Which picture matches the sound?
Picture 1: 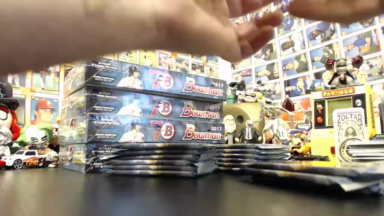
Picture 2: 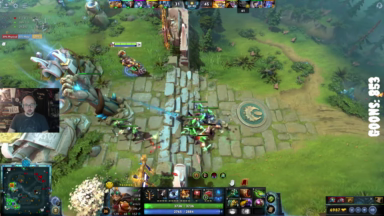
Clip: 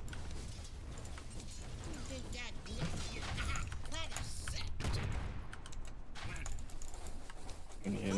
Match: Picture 2